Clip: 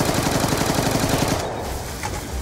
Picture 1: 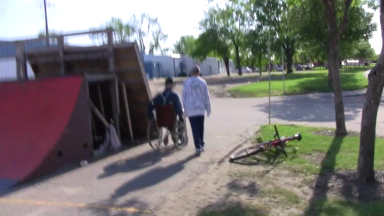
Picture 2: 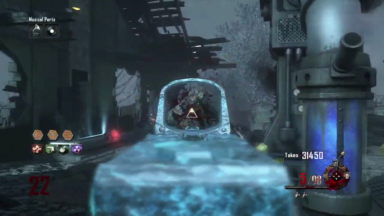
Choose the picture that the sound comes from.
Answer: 2